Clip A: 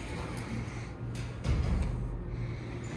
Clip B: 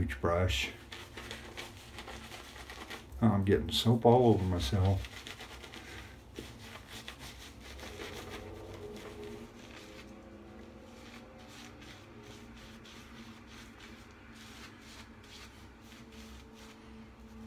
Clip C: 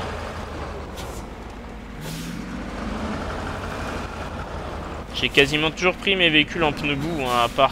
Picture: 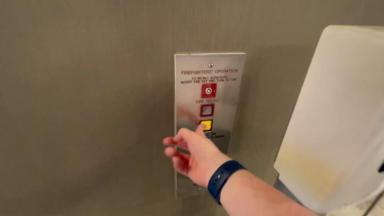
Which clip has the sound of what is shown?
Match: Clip A